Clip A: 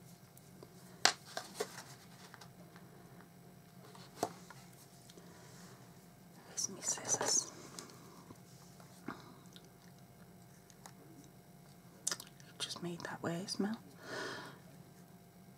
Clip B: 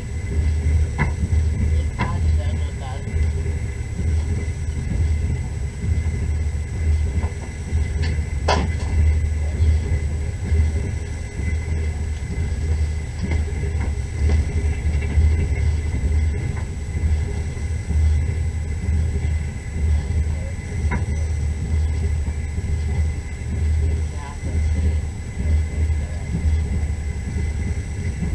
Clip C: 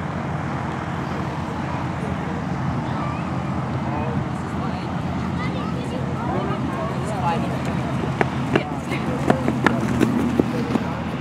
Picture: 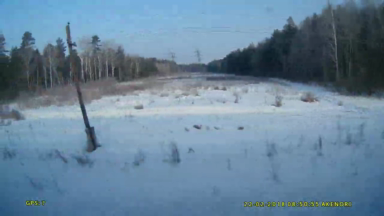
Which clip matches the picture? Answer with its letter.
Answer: B